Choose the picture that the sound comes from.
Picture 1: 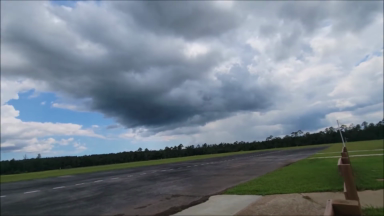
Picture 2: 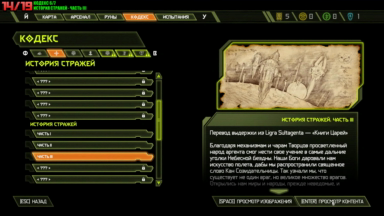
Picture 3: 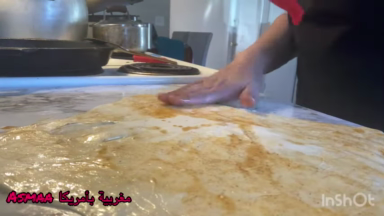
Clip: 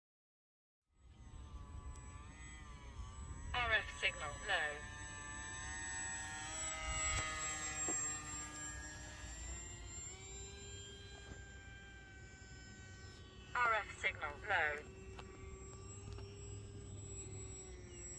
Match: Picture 1